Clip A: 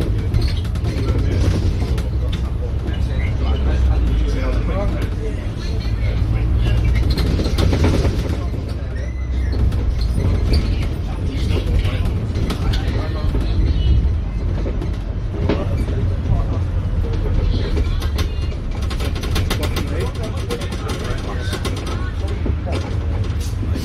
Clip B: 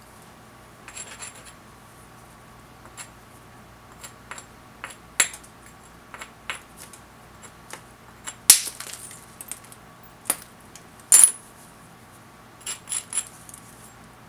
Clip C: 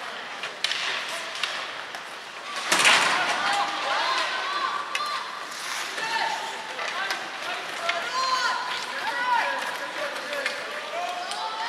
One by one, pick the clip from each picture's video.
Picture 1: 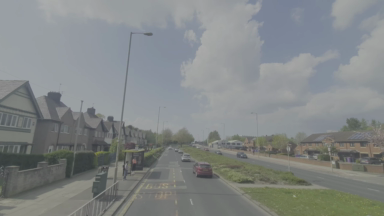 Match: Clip A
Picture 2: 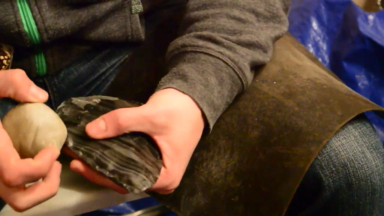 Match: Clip B